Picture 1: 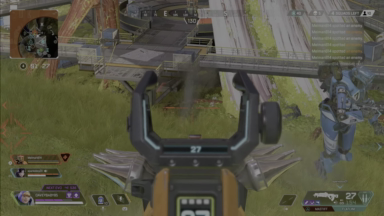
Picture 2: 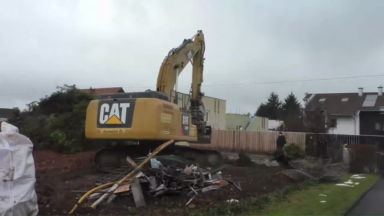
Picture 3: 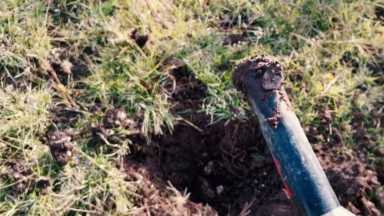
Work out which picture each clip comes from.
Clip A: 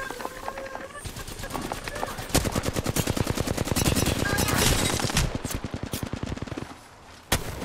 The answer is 1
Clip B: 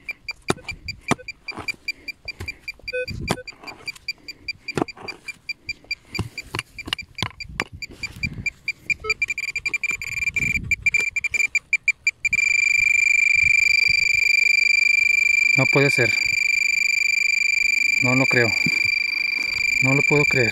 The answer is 3